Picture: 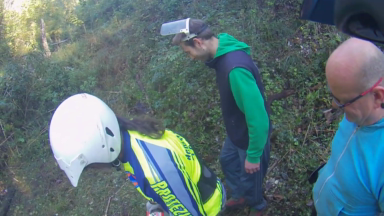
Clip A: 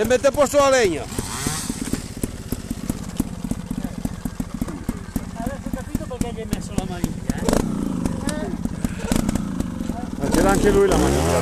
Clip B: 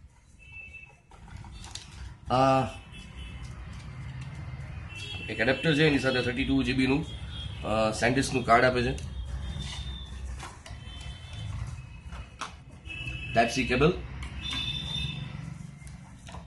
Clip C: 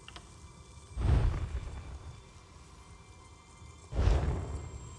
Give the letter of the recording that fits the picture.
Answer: A